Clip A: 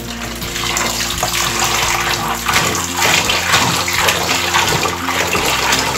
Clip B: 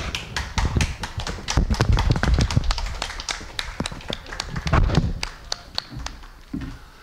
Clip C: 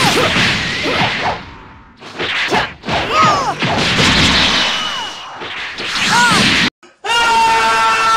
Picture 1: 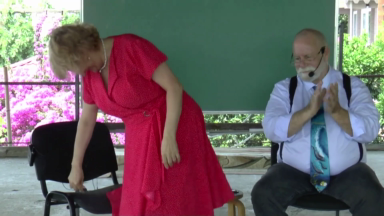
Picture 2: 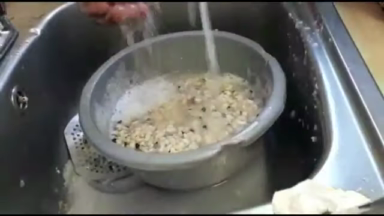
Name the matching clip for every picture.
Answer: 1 B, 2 A